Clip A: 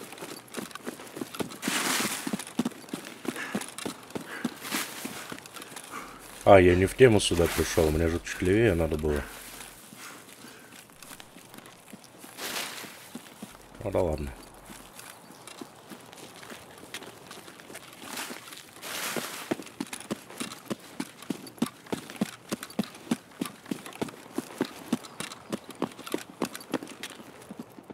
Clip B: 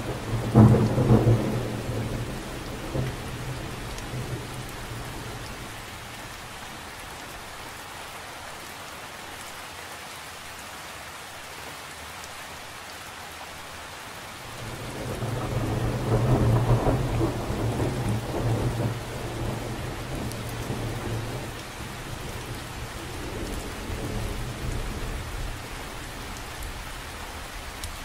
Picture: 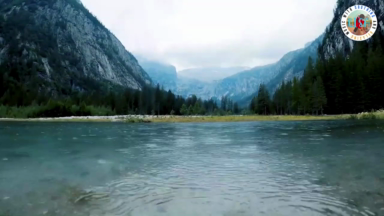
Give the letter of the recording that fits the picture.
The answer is B